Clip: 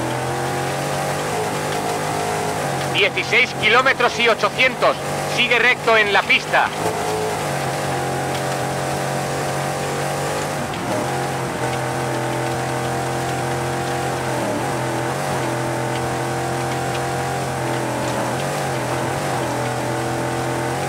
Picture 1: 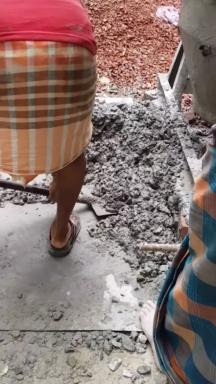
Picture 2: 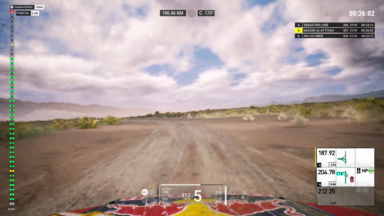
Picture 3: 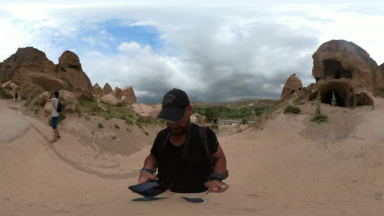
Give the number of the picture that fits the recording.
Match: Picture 2